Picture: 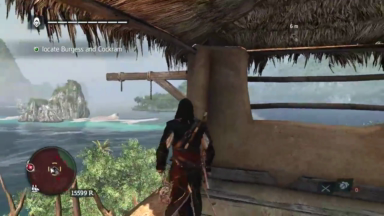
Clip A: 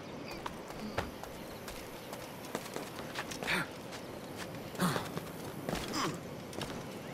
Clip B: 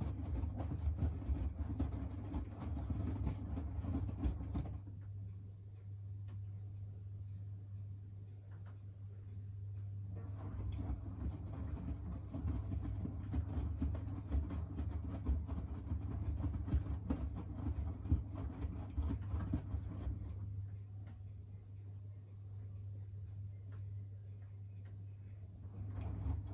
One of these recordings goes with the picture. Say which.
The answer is A